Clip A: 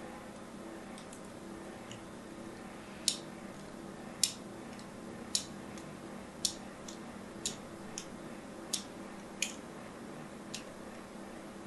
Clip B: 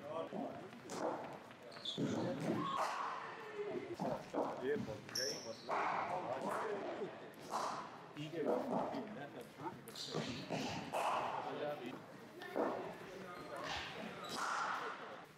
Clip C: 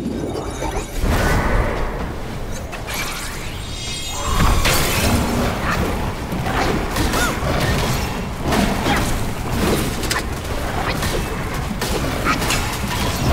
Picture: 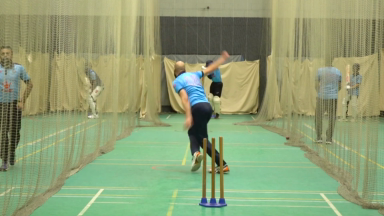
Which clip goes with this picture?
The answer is B